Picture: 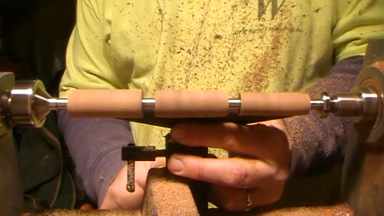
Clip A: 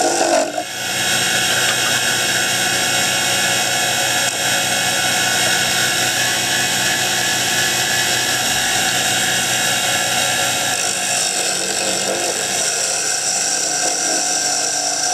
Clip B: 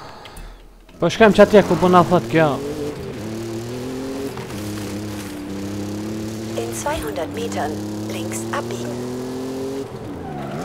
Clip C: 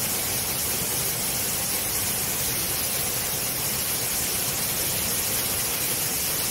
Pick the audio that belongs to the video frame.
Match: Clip A